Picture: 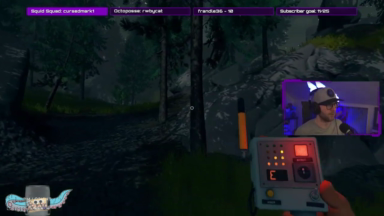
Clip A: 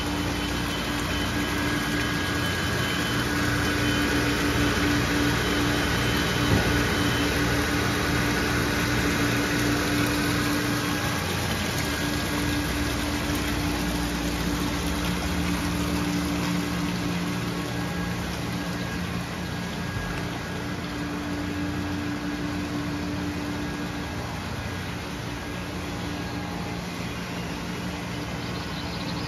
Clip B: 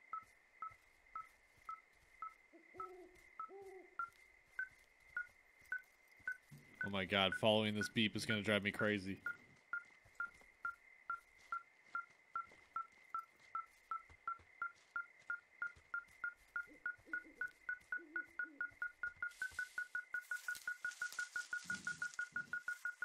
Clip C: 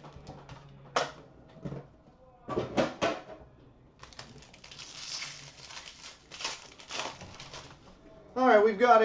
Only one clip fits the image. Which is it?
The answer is B